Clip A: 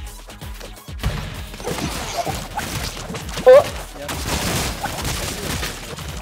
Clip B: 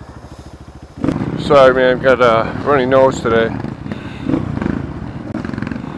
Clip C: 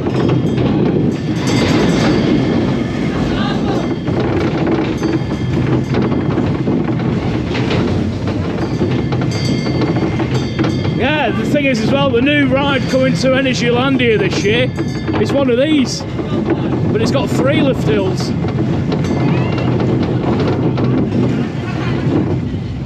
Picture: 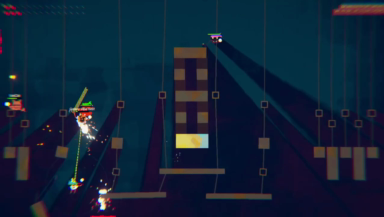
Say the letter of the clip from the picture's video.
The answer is A